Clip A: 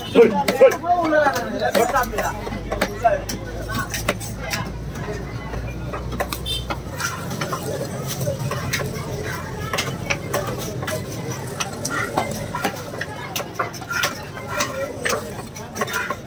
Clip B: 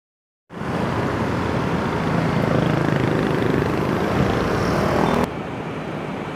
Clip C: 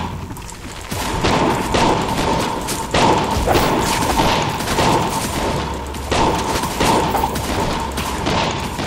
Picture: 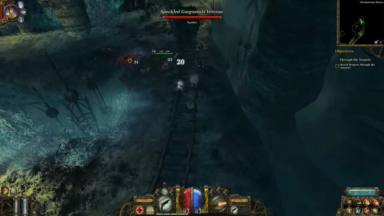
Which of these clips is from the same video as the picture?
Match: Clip C